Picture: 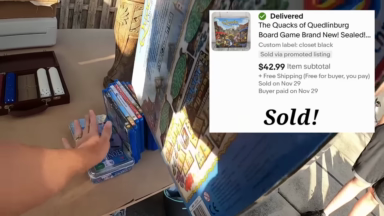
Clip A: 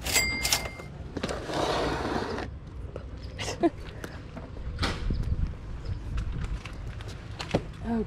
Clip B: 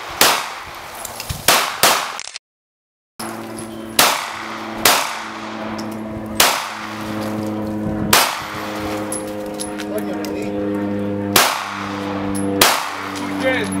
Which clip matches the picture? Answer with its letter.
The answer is A